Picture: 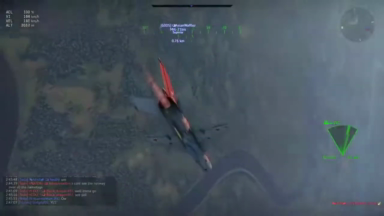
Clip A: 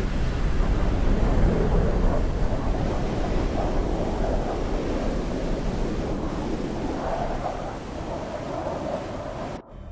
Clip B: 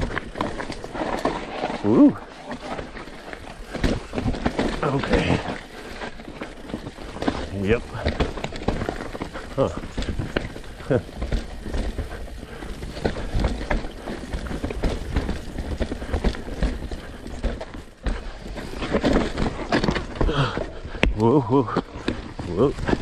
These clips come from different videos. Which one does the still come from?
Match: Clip A